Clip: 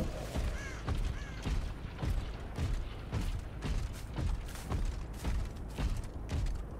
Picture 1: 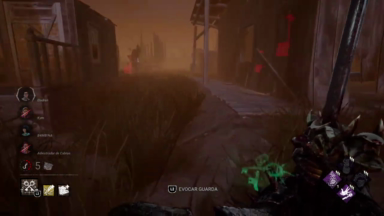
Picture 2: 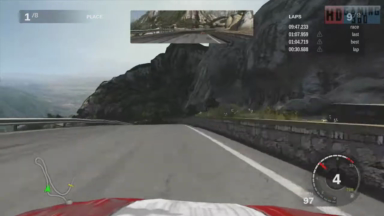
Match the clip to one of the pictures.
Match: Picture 1